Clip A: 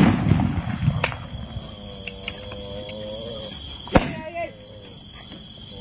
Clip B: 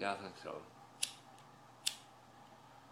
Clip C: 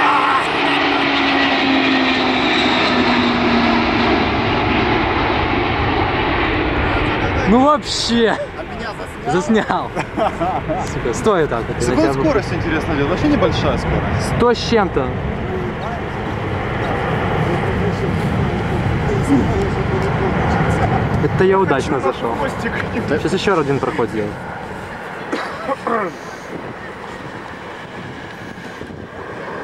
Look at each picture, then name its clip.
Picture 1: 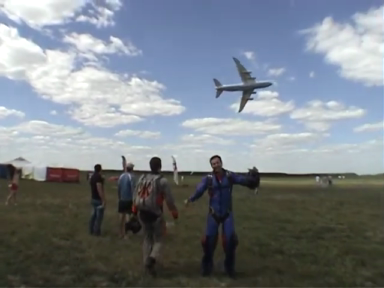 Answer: C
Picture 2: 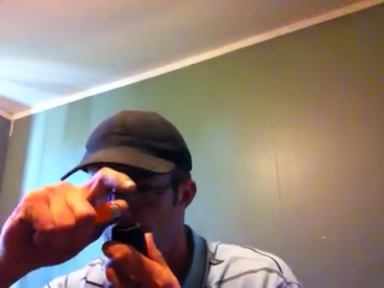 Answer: B